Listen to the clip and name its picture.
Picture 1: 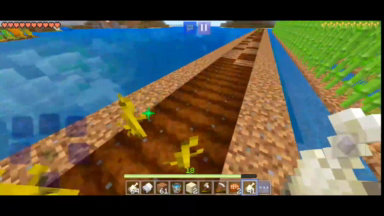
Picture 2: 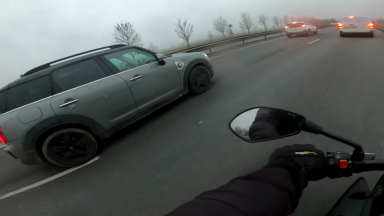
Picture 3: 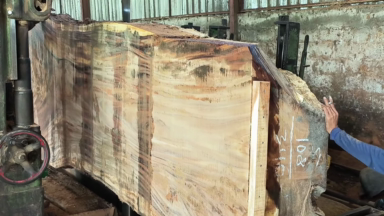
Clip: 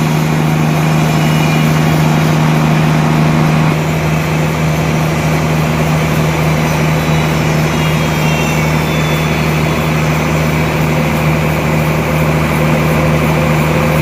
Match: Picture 3